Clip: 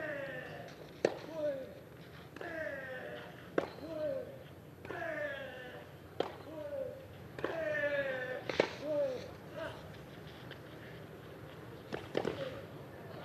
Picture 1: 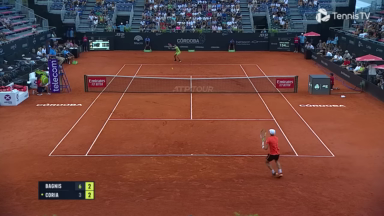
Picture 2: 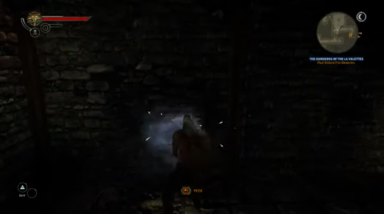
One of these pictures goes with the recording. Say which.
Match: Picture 1